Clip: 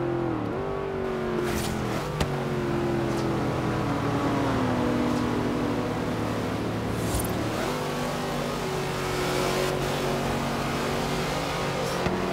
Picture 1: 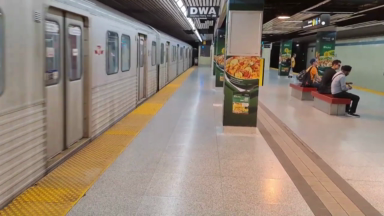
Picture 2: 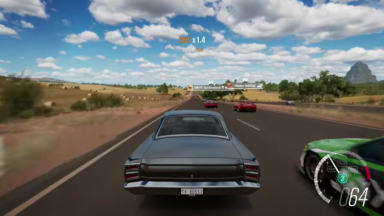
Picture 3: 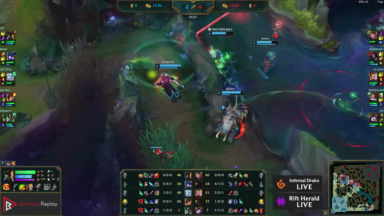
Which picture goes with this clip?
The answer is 2